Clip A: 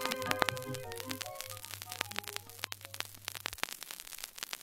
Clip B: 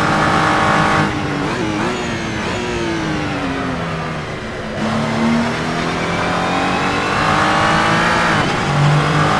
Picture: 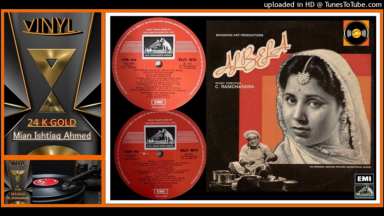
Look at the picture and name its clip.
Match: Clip A